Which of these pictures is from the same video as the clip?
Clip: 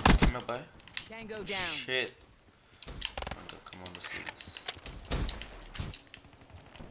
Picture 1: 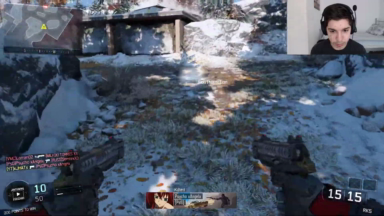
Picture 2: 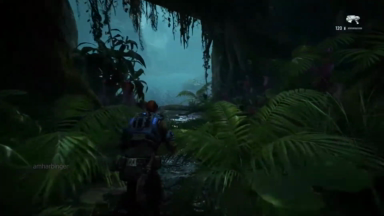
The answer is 1